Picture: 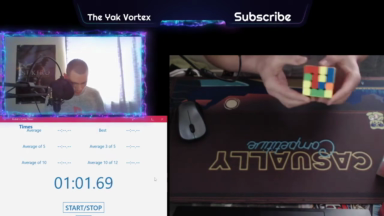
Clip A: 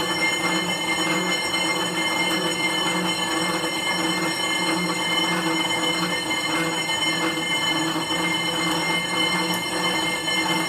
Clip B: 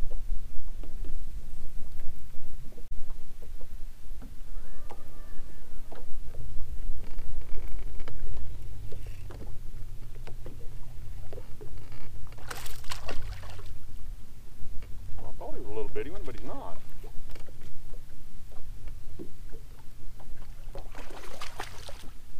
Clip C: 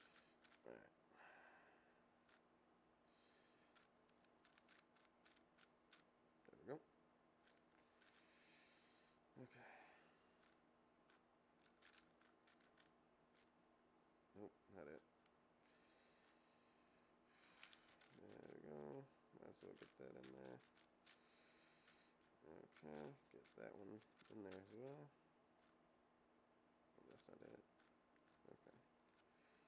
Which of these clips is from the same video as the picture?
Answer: C